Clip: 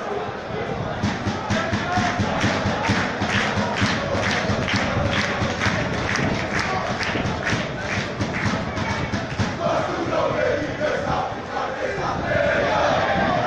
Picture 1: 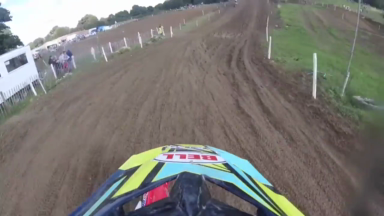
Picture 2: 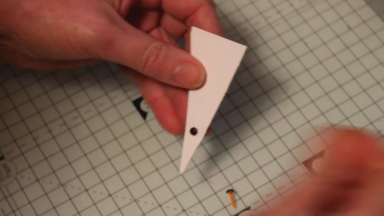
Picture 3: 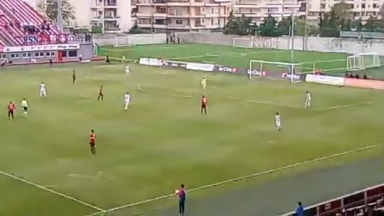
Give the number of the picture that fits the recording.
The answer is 3